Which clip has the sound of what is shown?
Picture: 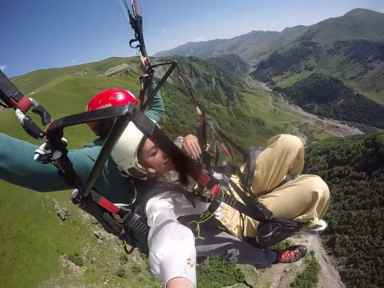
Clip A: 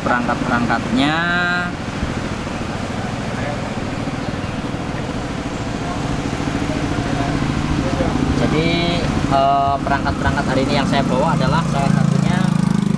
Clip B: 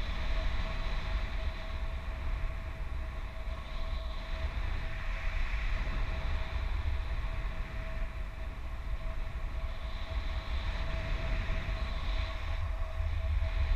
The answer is B